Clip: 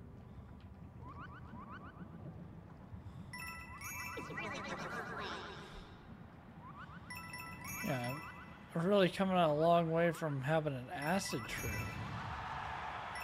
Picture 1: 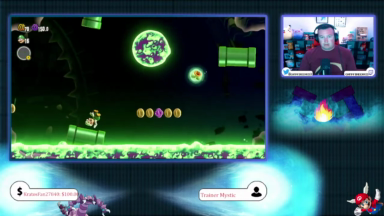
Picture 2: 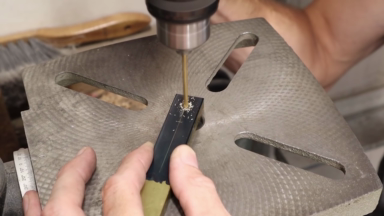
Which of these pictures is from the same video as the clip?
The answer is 1